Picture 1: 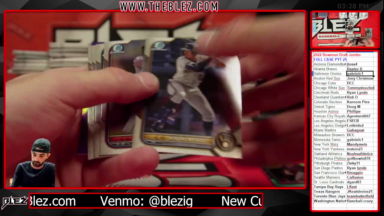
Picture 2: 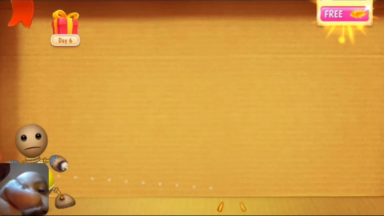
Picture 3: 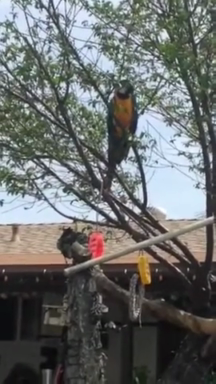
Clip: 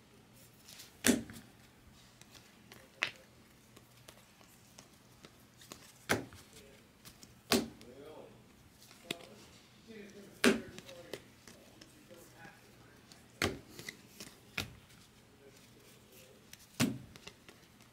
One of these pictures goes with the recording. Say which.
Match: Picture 1